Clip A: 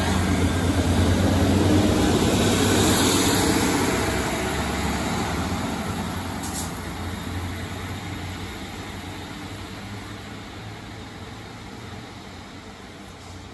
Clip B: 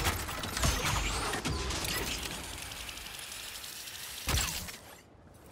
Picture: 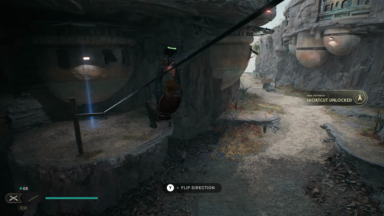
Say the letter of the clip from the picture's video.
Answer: B